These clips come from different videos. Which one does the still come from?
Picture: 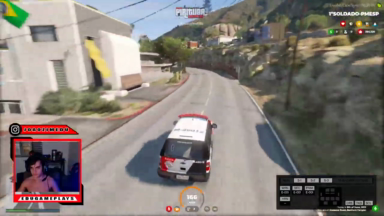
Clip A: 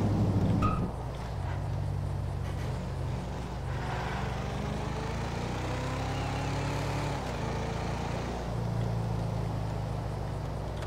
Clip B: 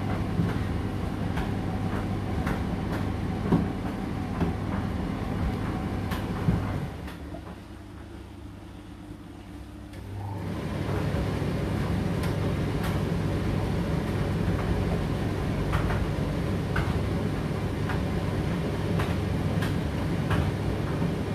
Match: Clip A